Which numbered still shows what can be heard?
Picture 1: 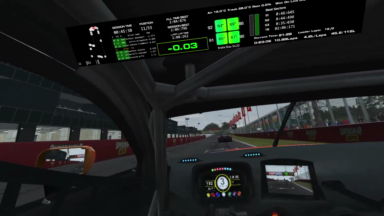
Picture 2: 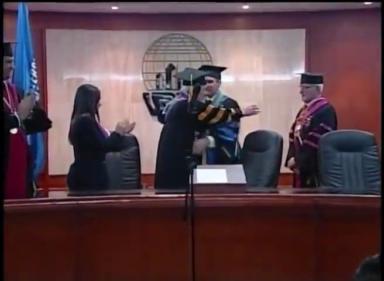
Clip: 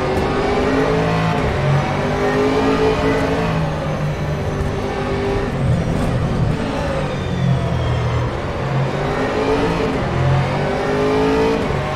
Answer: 1